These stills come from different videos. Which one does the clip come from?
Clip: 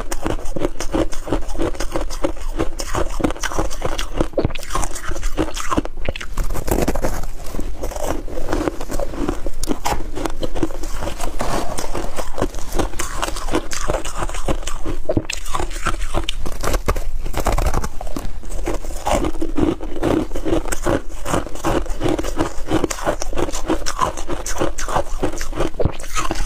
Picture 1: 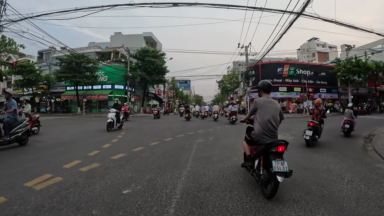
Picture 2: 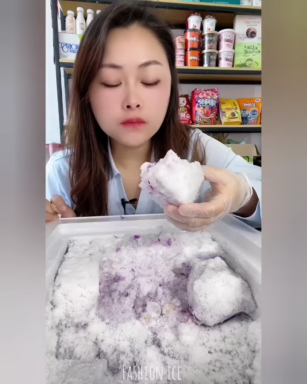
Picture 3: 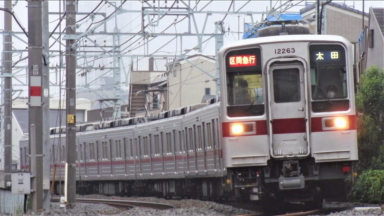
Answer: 2